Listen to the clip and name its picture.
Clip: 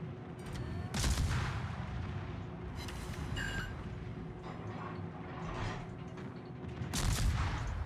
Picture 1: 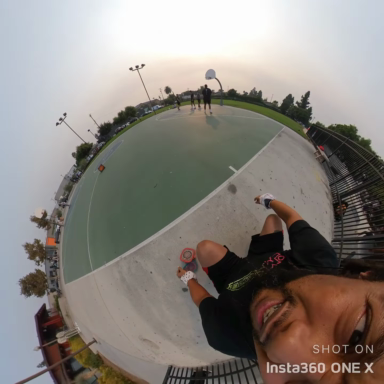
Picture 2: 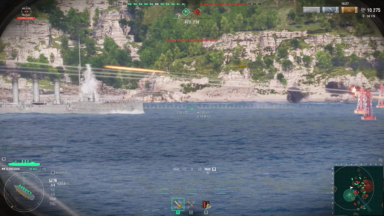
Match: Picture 2